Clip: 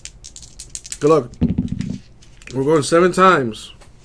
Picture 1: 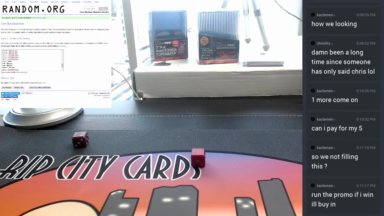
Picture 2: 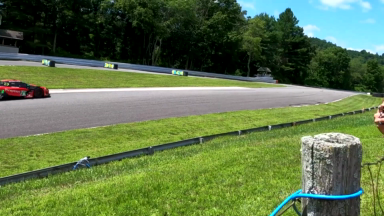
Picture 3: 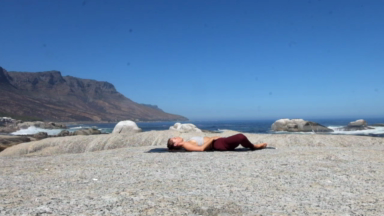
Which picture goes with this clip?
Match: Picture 1